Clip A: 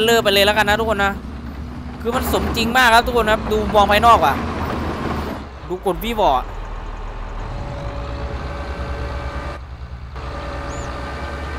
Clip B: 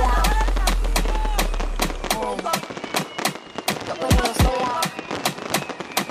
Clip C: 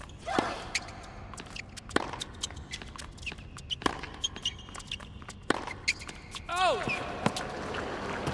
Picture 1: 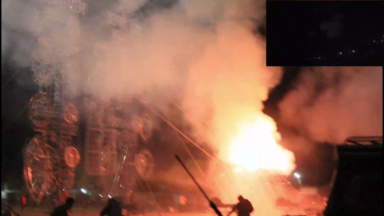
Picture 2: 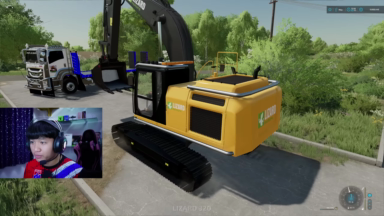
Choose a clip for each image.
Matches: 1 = B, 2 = A